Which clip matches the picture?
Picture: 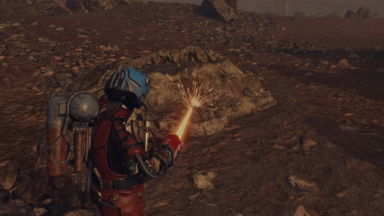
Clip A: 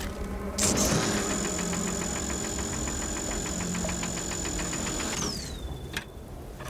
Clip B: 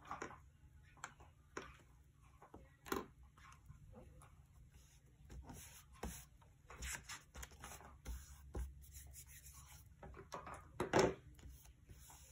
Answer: A